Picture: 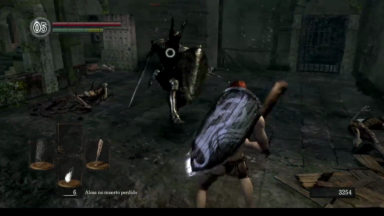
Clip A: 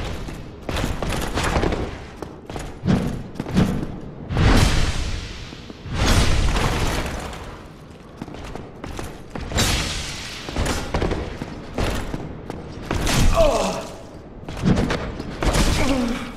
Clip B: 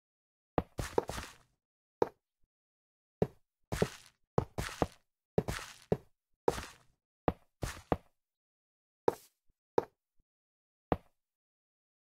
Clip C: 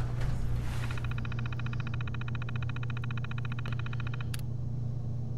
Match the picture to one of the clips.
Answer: A